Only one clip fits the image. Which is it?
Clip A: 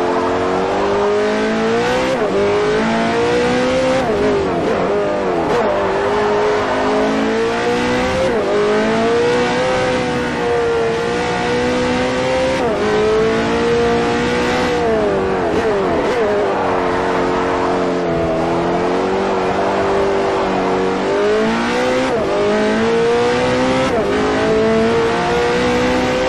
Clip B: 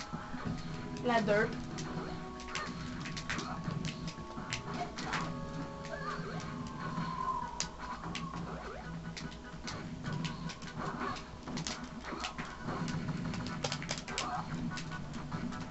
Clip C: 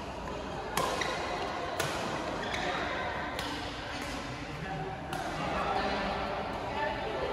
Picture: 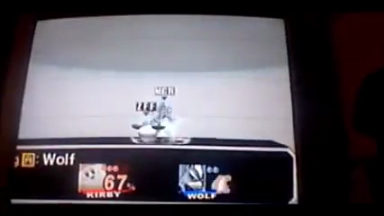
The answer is B